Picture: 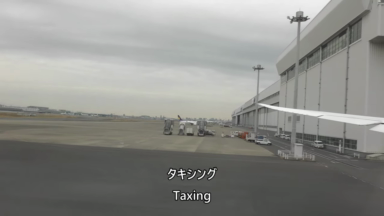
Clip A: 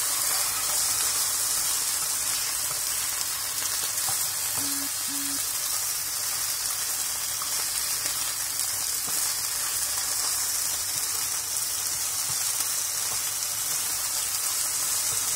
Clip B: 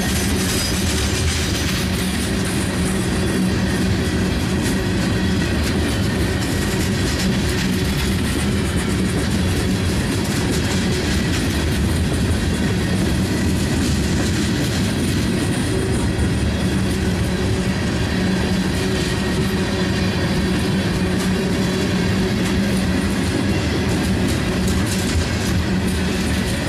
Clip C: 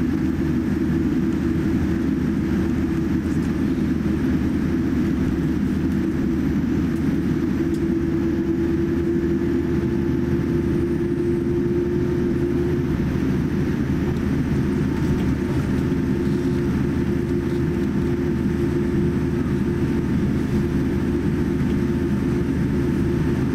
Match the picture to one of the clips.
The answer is C